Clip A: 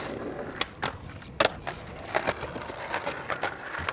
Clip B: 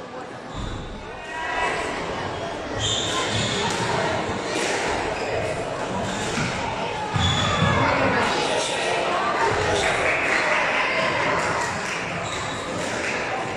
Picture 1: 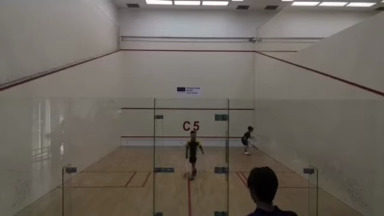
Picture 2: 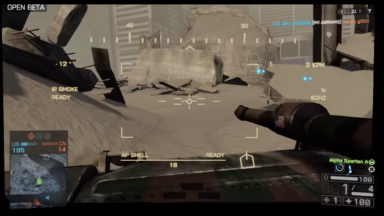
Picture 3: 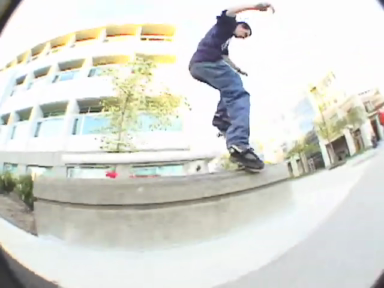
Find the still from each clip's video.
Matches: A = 3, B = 1